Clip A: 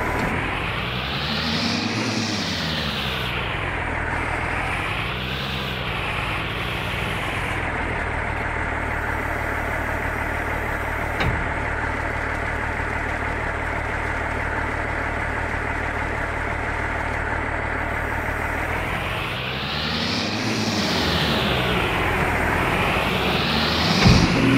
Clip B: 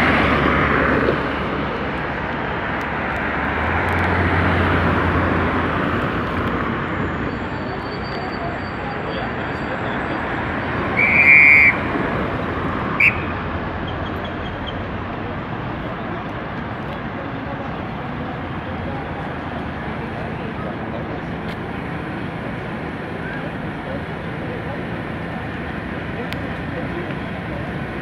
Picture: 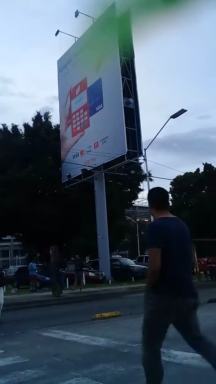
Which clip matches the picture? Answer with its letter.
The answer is B